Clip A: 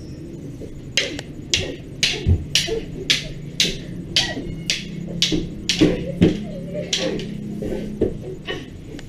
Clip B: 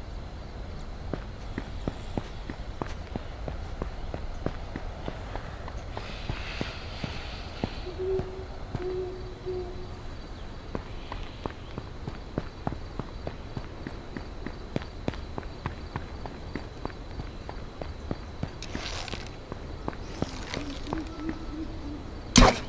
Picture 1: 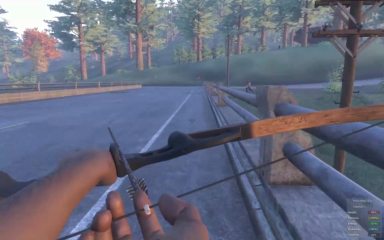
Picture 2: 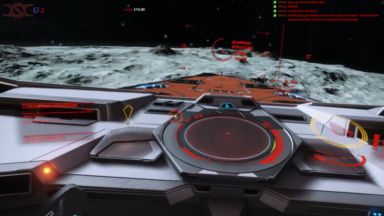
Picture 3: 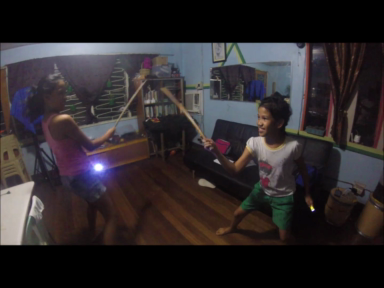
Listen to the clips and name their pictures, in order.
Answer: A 3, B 1